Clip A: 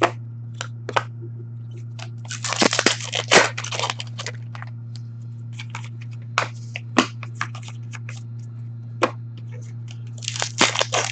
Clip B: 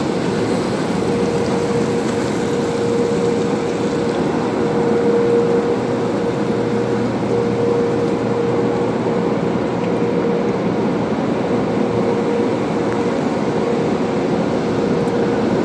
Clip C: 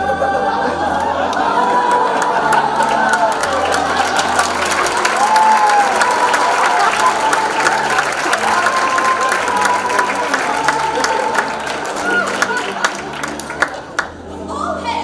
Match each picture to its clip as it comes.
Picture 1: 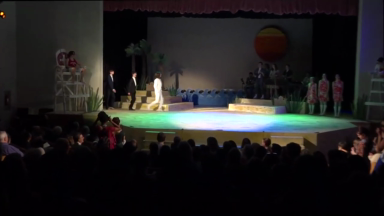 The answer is C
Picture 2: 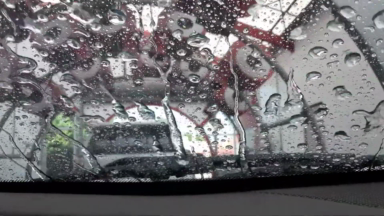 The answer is B